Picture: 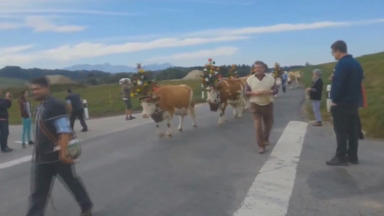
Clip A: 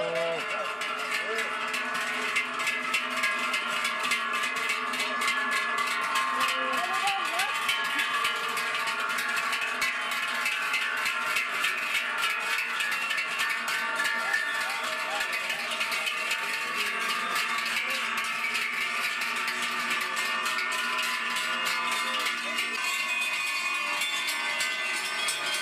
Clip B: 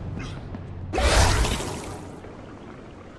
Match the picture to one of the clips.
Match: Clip A